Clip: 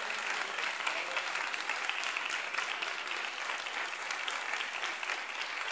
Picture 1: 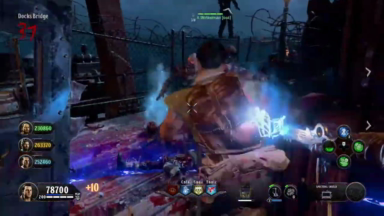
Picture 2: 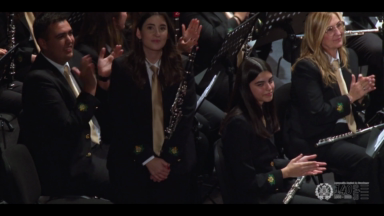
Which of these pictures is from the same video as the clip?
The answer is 2